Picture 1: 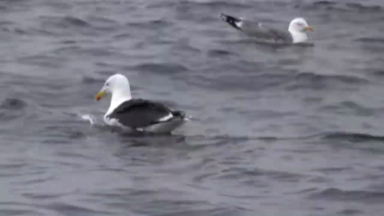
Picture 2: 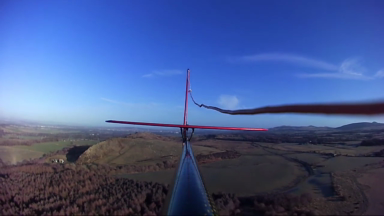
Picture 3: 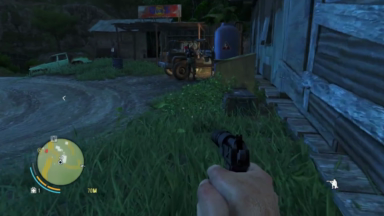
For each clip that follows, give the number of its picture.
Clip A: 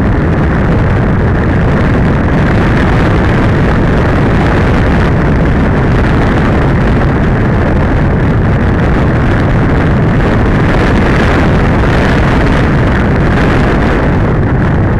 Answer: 2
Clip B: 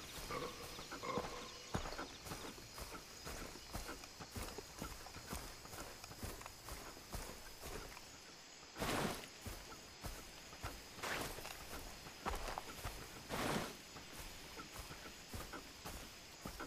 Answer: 3